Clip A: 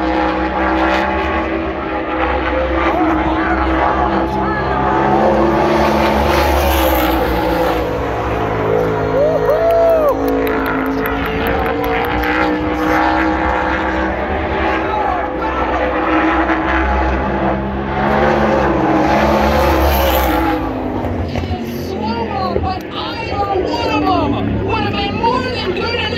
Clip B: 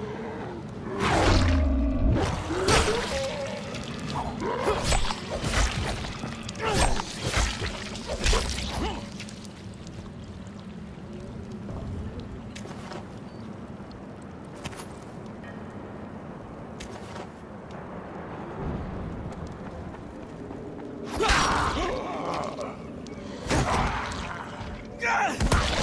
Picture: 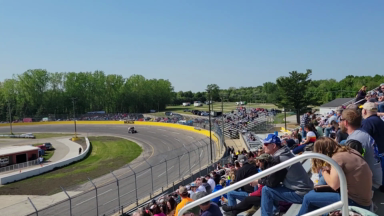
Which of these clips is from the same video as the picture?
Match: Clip A